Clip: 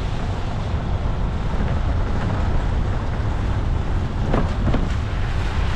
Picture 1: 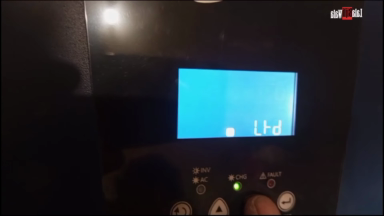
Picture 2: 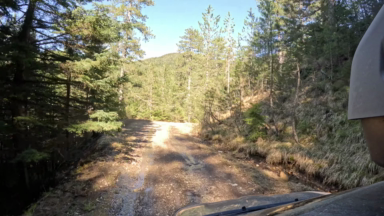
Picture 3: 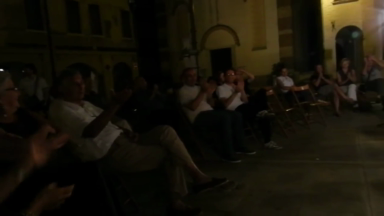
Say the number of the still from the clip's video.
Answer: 2